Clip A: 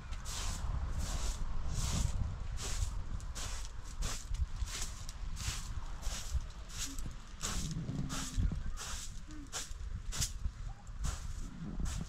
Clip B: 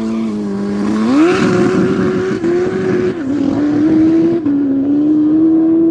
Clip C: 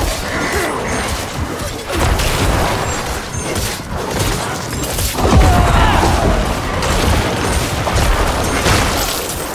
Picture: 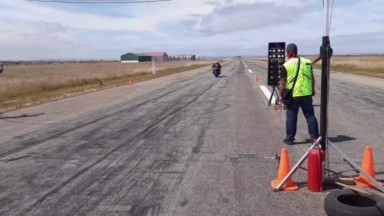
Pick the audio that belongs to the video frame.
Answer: B